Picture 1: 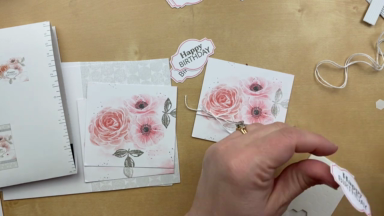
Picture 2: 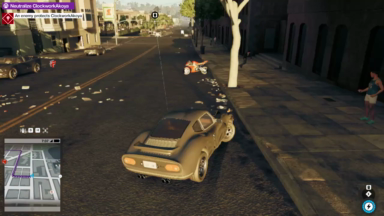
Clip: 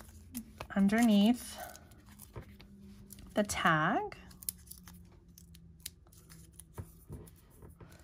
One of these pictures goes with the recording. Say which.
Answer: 1